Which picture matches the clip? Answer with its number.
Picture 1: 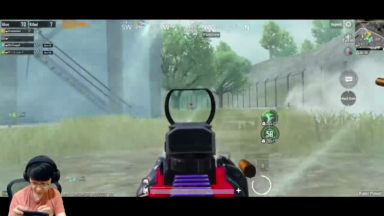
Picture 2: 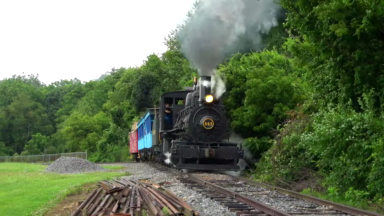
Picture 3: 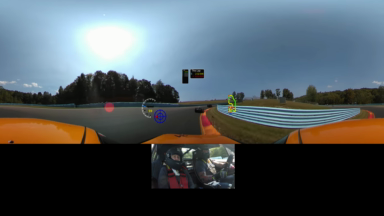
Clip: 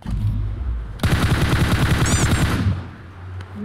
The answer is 1